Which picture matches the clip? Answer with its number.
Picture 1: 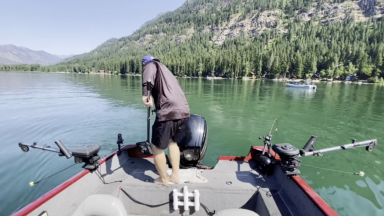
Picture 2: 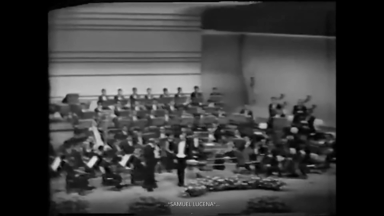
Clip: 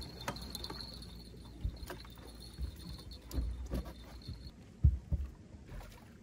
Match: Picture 1